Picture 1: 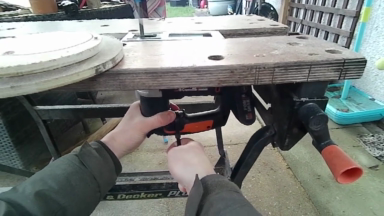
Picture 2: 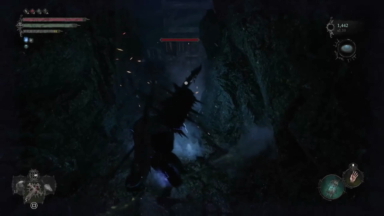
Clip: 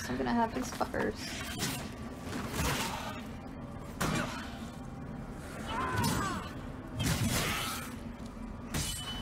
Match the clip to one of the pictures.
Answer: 2